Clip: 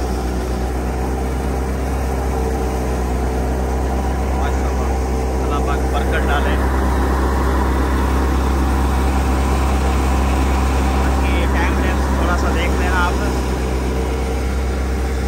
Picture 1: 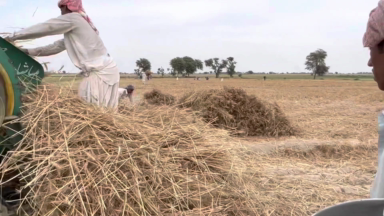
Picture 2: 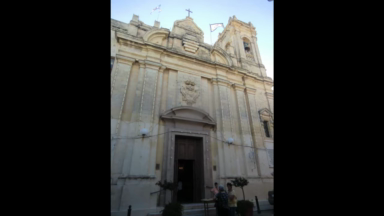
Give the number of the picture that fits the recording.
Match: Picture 1